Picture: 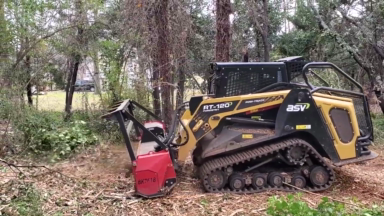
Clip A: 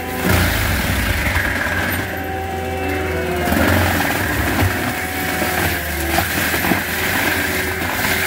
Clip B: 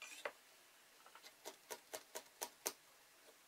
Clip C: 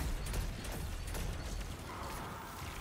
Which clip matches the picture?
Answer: A